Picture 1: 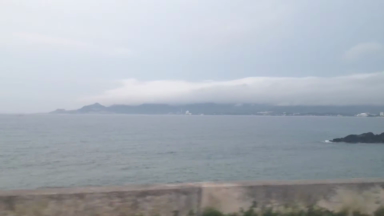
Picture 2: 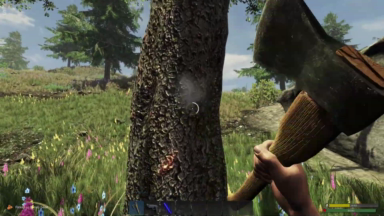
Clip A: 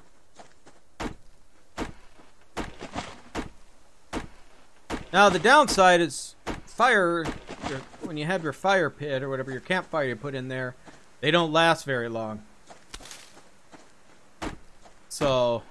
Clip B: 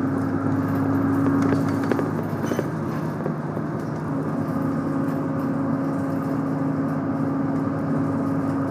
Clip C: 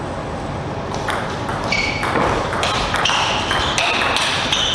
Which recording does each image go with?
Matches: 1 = B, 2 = A